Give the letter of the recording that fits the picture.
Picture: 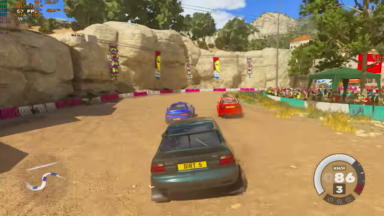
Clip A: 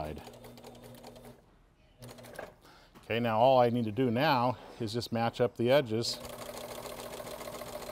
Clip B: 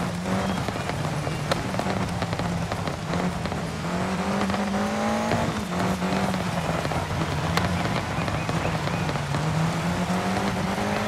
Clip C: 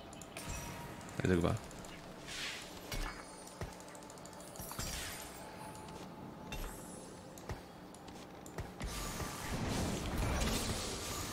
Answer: B